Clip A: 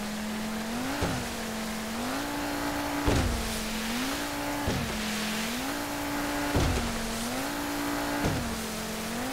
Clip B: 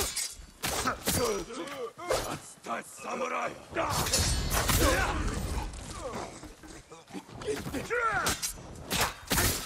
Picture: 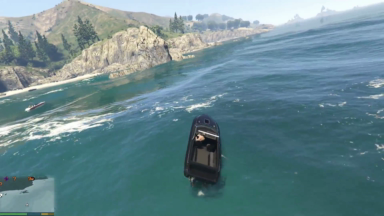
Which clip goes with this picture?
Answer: A